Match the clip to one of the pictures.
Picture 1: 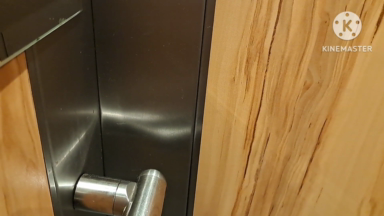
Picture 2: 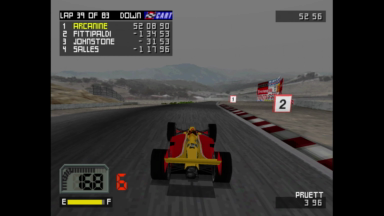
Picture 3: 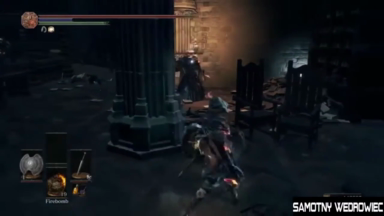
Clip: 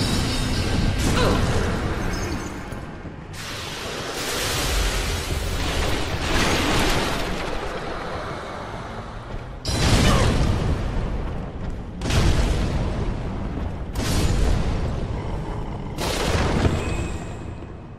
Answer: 3